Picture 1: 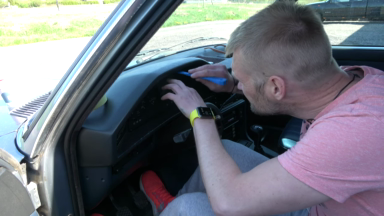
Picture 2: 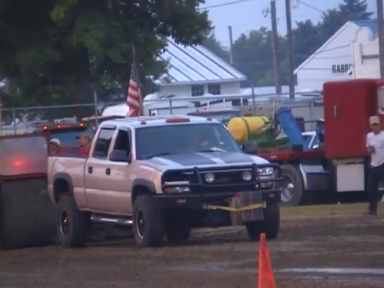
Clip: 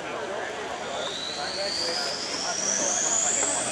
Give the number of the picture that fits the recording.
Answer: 2